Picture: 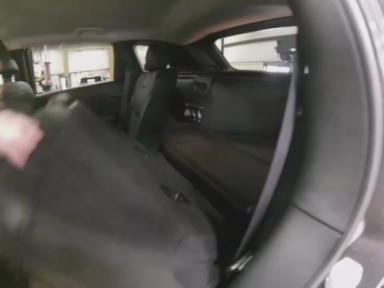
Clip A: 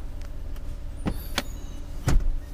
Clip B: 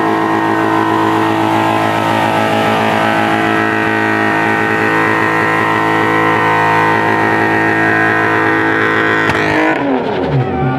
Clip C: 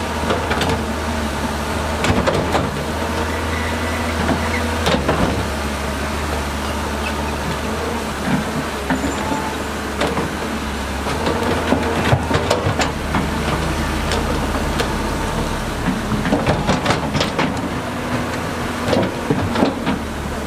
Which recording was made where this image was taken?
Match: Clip A